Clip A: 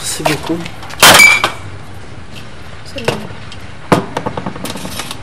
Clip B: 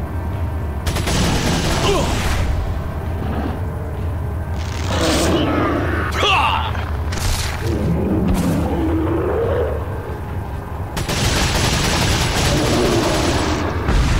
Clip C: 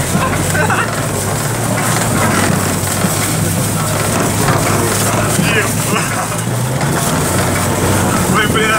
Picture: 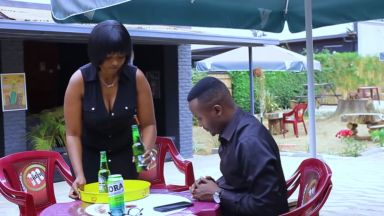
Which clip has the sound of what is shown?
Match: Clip A